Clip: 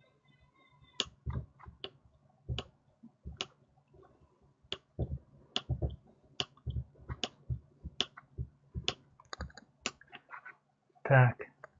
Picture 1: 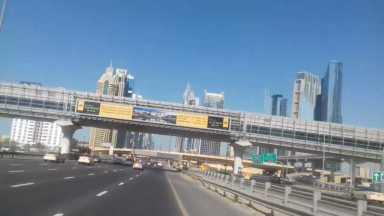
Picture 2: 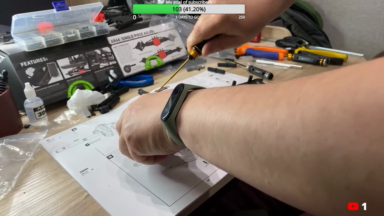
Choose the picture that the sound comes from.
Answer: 2